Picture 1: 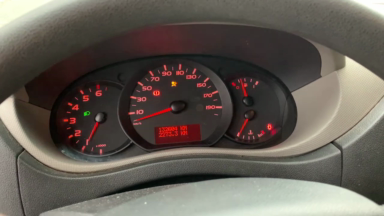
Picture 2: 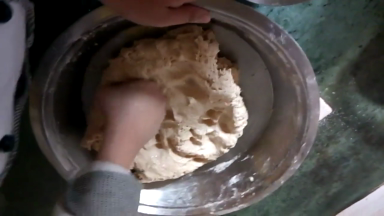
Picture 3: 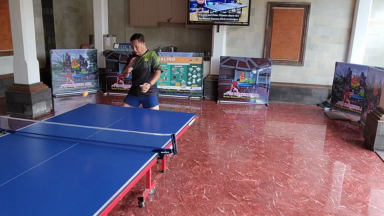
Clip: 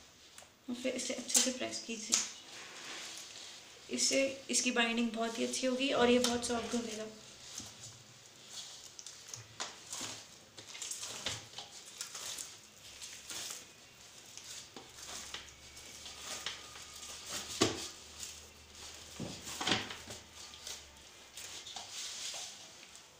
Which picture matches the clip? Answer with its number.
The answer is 2